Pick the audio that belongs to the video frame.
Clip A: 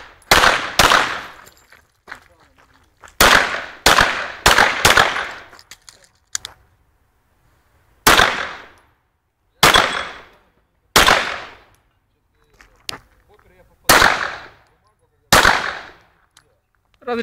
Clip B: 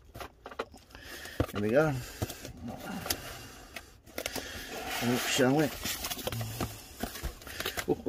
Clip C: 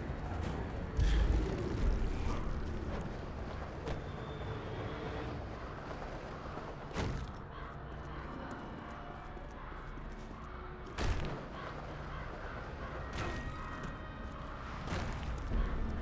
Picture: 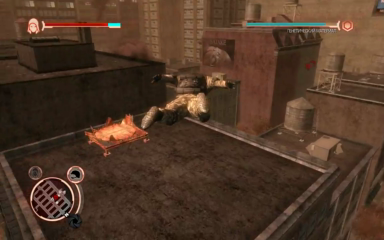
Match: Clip C